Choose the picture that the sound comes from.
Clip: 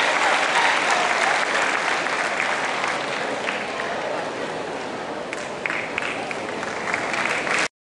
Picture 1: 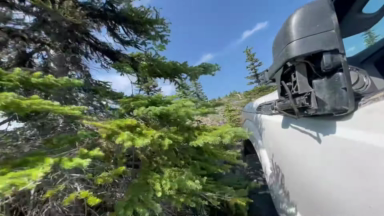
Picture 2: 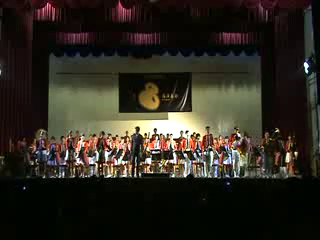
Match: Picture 2